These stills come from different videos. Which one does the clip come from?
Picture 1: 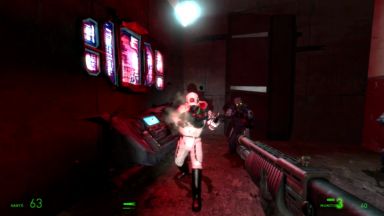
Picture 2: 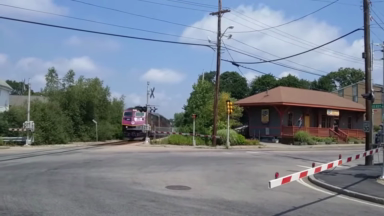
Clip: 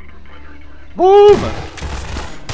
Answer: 1